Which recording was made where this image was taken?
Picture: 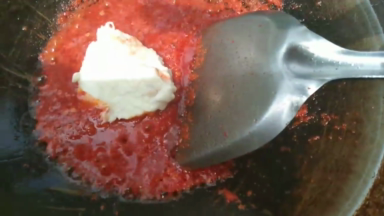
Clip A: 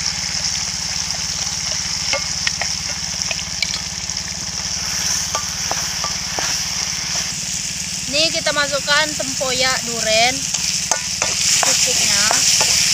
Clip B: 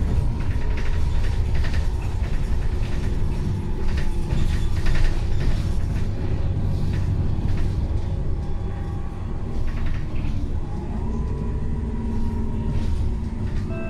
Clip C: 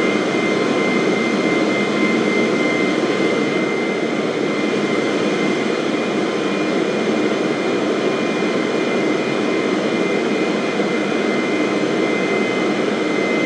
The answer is A